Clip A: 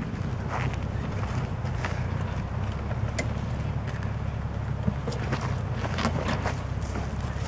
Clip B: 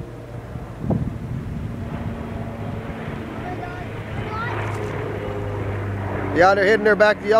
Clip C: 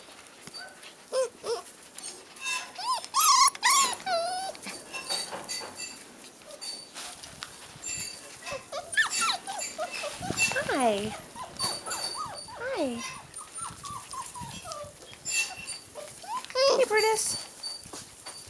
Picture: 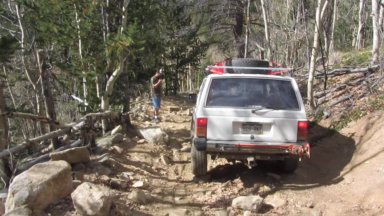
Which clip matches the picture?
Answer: A